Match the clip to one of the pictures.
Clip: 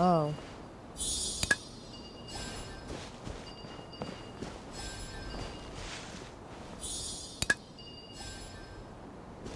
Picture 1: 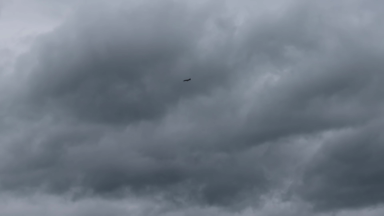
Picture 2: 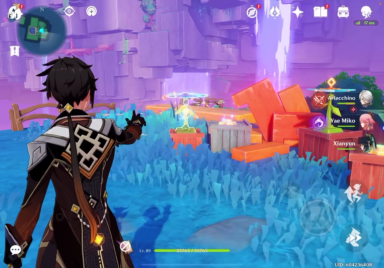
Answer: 2